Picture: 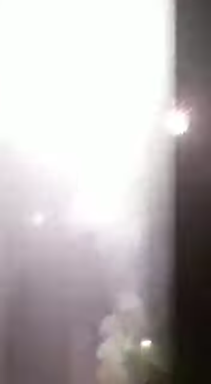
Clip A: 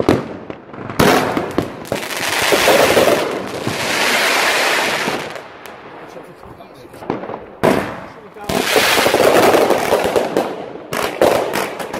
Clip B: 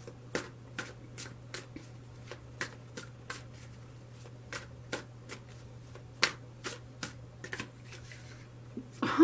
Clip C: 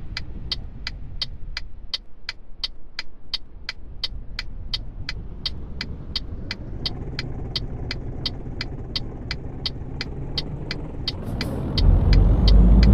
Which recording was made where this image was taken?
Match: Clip A